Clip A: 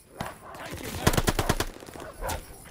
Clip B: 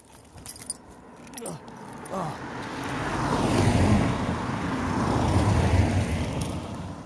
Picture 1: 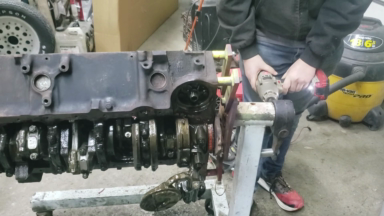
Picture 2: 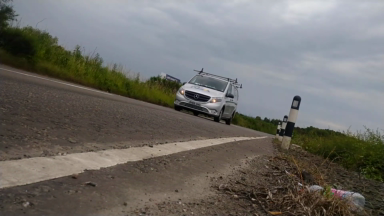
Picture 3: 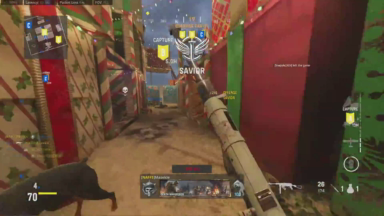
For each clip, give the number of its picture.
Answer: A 3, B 2